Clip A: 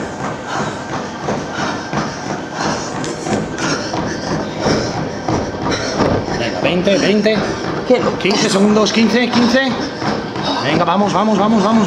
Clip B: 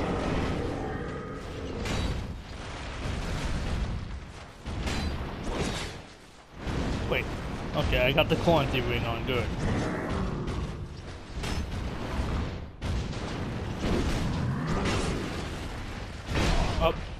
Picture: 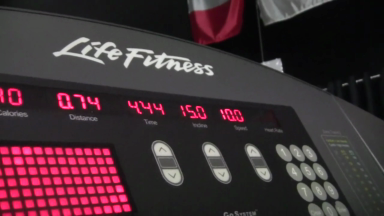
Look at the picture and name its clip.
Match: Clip A